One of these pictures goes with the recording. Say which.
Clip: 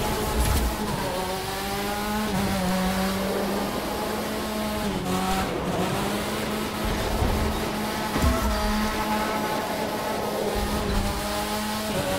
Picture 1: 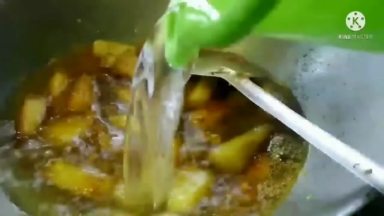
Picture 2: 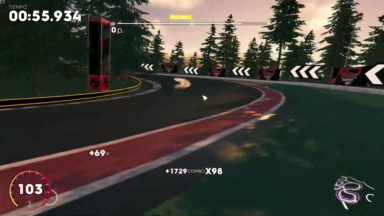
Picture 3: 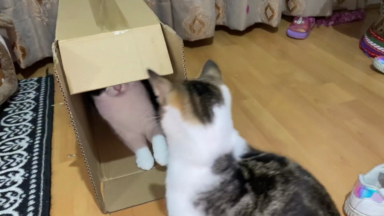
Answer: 2